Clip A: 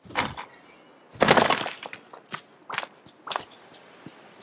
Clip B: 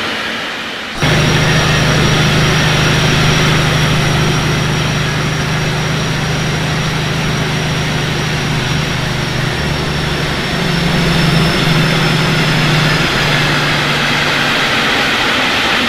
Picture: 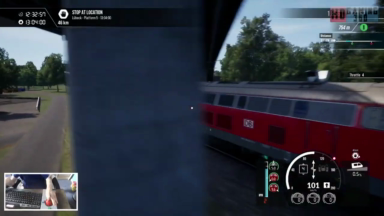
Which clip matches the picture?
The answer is B